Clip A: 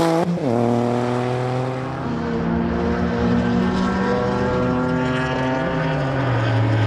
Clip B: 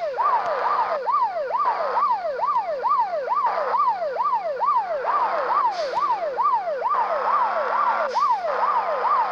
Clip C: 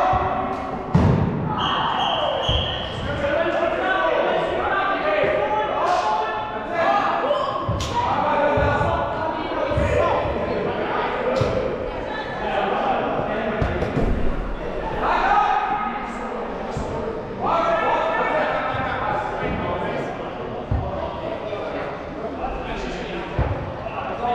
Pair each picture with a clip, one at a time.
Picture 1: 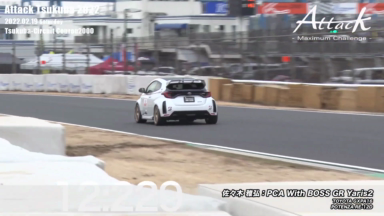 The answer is A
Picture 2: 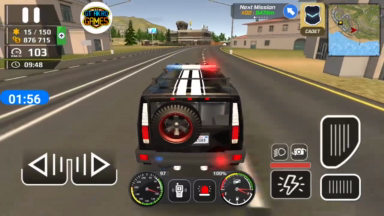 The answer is B